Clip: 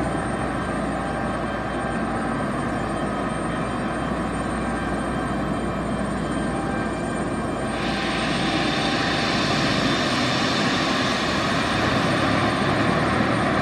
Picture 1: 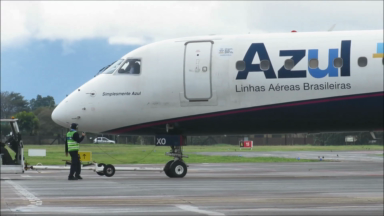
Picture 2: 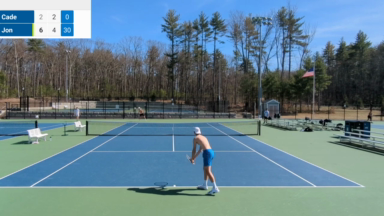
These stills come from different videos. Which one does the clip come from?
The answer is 1